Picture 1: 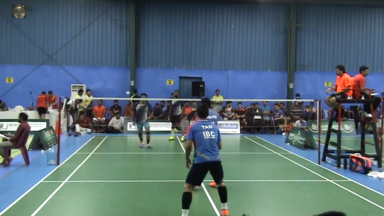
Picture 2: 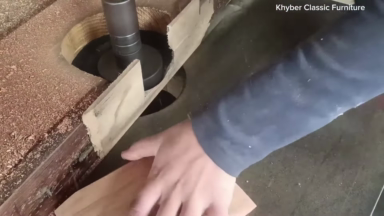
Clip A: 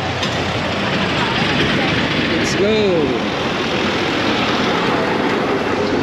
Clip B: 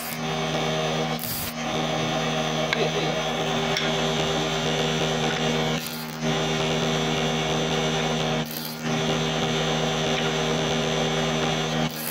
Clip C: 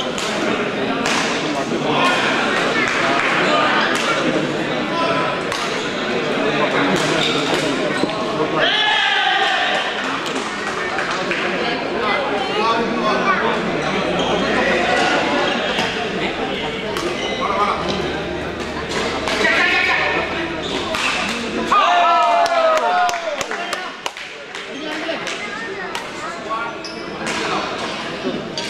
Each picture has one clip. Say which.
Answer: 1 C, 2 B